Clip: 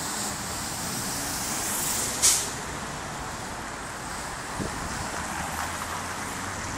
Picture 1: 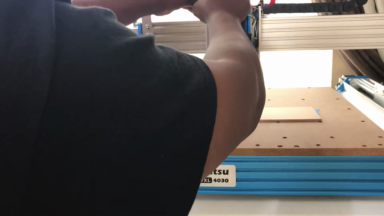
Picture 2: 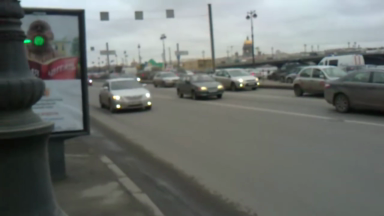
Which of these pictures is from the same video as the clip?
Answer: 2